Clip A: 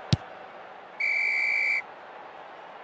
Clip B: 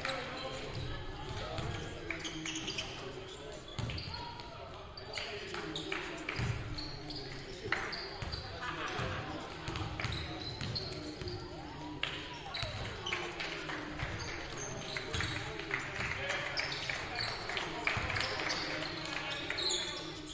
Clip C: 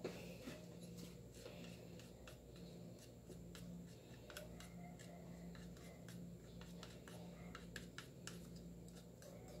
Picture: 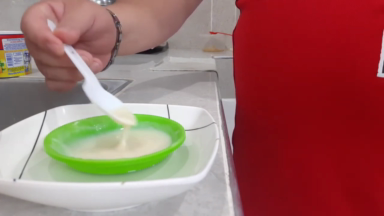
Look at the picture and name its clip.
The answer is C